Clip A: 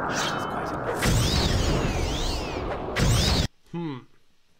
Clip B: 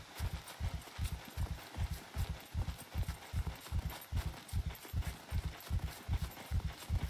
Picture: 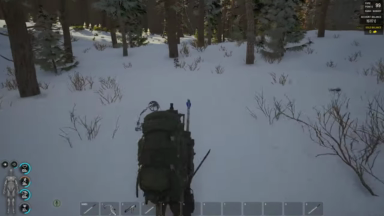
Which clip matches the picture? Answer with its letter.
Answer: B